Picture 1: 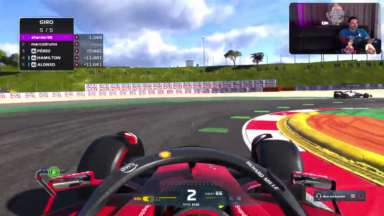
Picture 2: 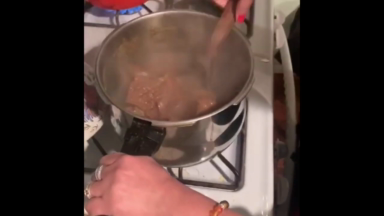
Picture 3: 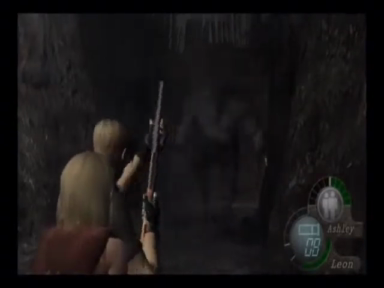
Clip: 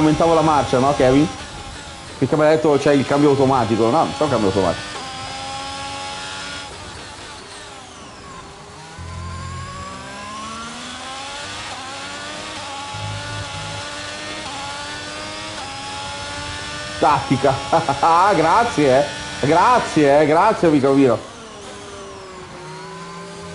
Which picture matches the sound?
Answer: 1